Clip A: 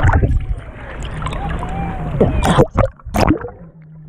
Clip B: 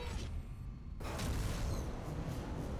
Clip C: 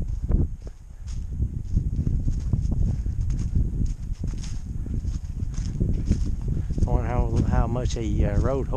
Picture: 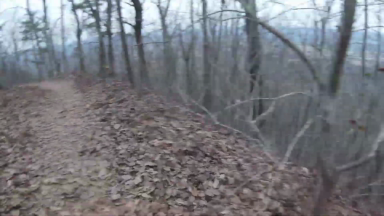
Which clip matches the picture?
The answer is C